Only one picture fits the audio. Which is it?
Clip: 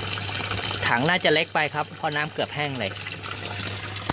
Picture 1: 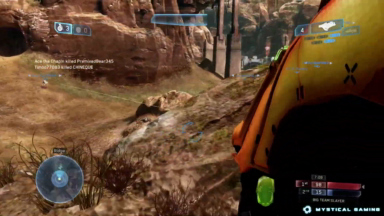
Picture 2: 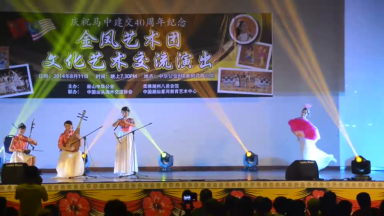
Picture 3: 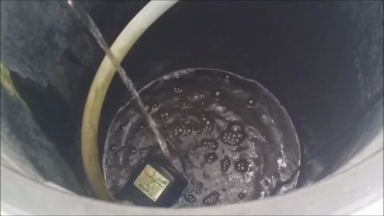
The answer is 3